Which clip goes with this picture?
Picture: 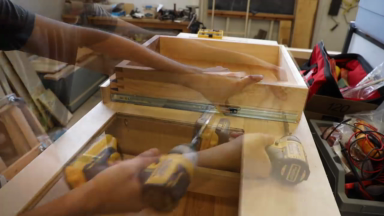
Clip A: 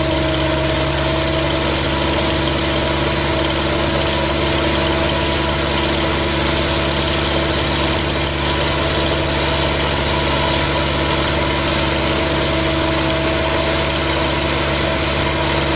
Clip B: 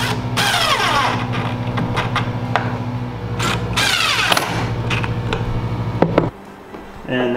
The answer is B